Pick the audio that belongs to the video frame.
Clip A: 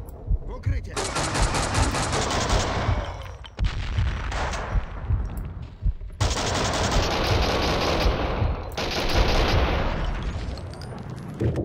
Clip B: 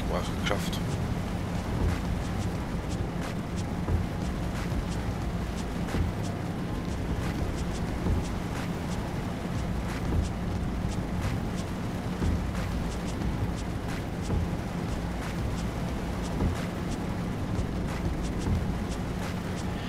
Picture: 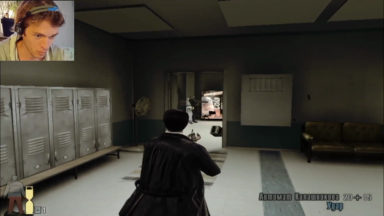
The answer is A